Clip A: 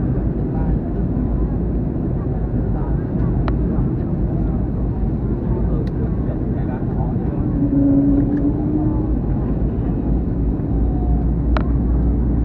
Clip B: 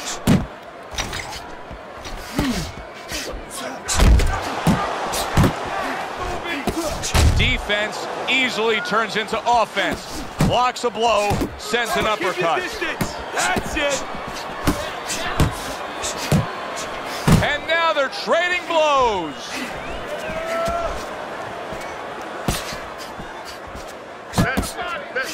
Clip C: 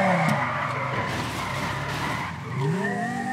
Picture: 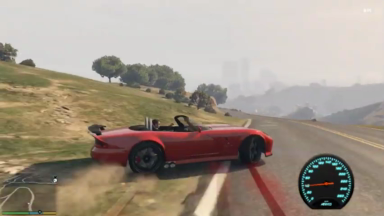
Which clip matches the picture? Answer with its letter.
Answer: C